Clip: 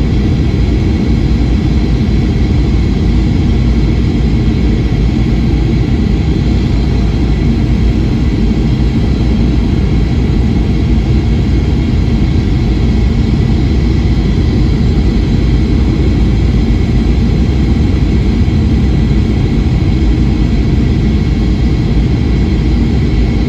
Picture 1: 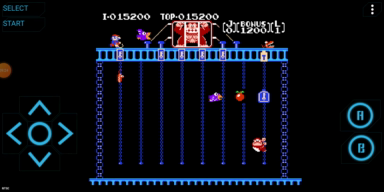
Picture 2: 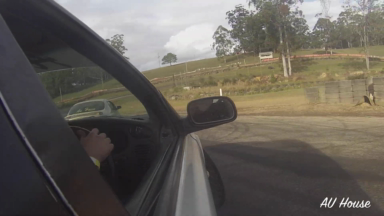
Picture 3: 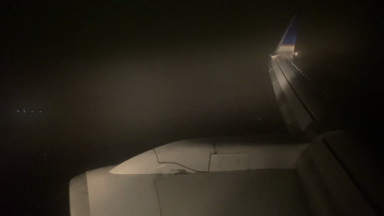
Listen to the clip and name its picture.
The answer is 3